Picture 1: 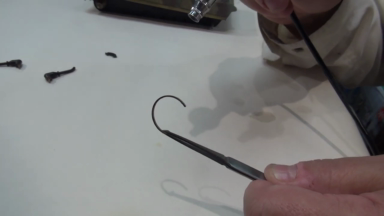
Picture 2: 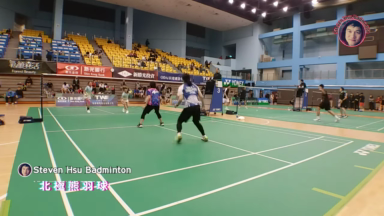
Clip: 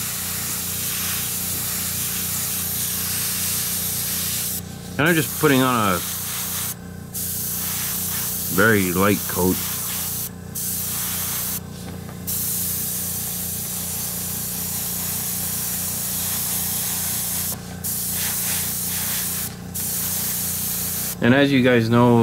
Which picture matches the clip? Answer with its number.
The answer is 1